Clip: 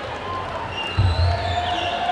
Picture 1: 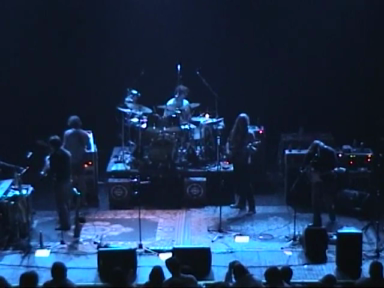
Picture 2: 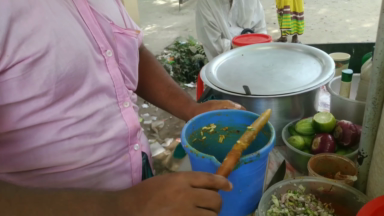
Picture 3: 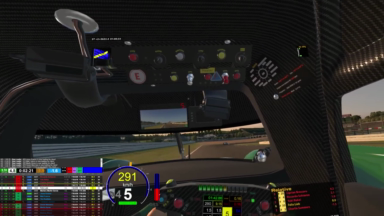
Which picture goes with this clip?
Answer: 1